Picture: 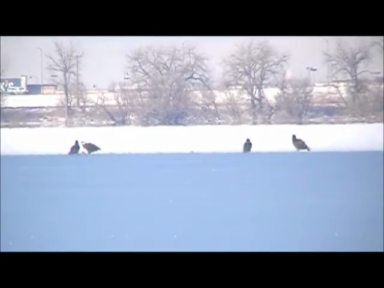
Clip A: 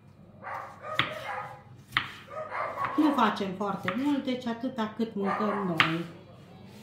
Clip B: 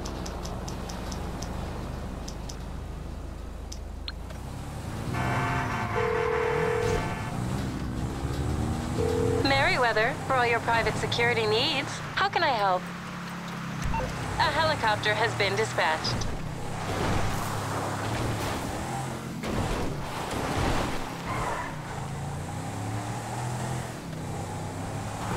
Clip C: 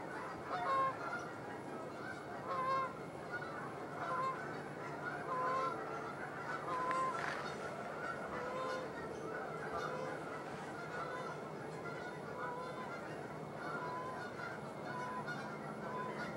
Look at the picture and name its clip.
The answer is C